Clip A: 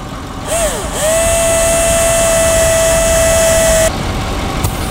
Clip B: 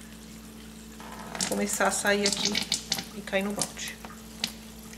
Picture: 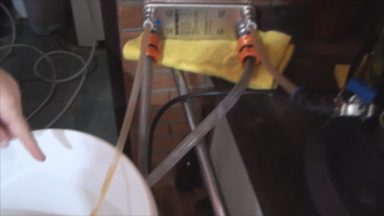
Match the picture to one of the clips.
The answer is B